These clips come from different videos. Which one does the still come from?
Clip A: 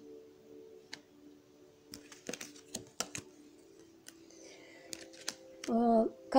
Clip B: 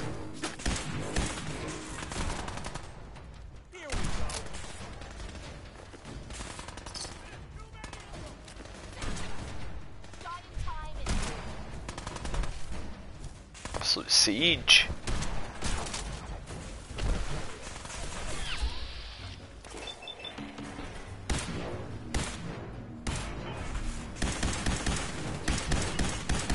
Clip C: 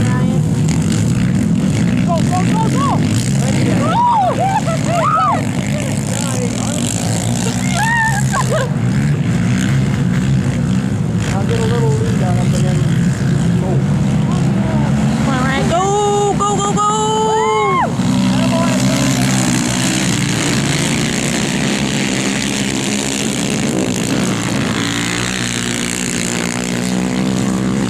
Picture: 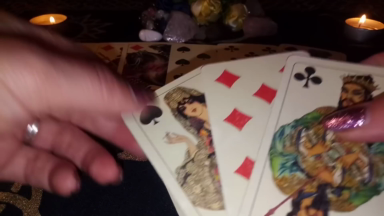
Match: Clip A